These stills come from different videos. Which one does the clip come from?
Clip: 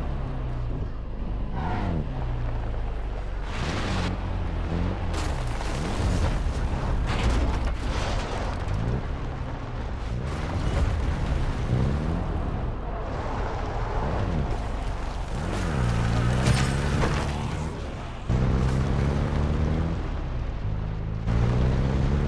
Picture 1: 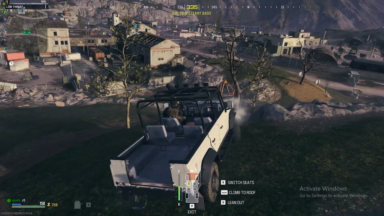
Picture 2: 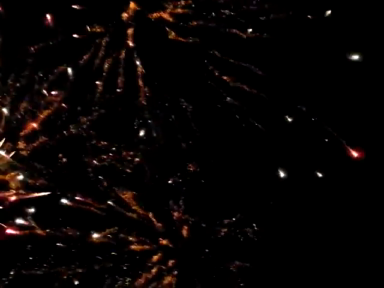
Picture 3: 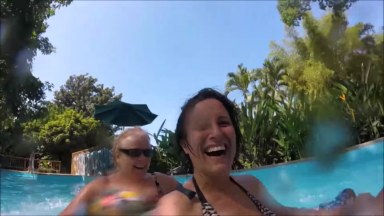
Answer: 1